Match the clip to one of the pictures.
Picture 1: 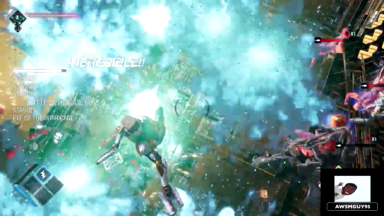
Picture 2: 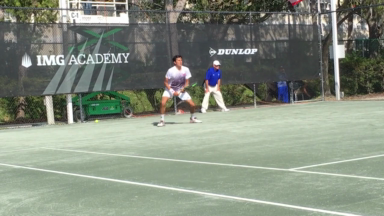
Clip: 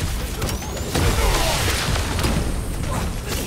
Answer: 1